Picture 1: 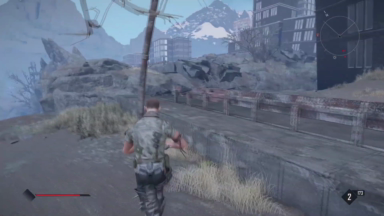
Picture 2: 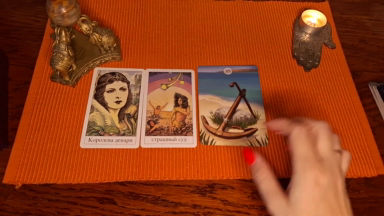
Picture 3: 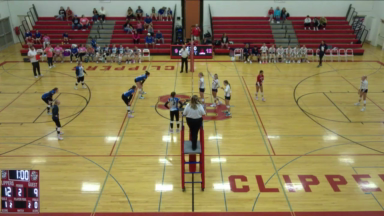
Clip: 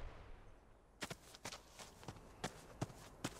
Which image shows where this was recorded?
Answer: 1